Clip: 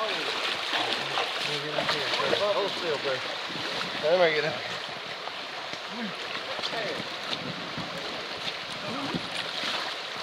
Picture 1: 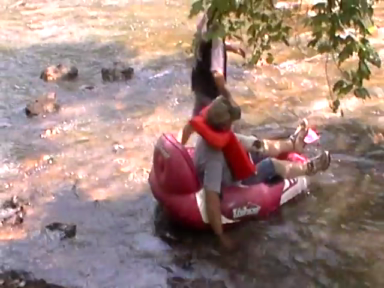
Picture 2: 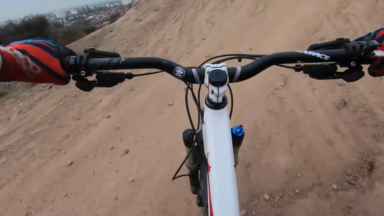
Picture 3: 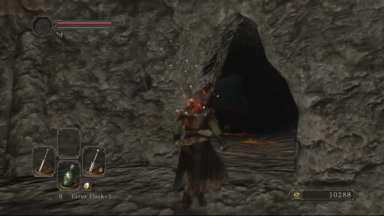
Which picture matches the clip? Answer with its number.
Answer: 1